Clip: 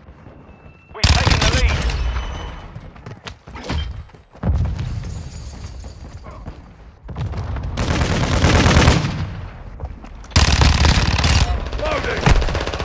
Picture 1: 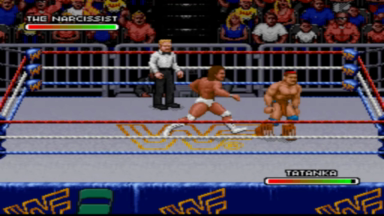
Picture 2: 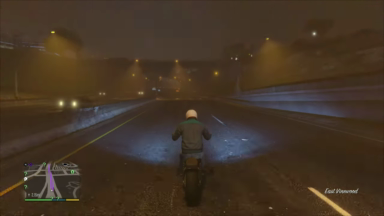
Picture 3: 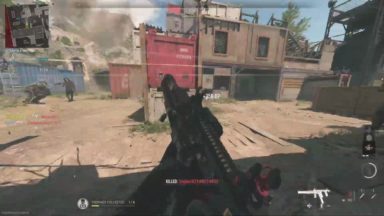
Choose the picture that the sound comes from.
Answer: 3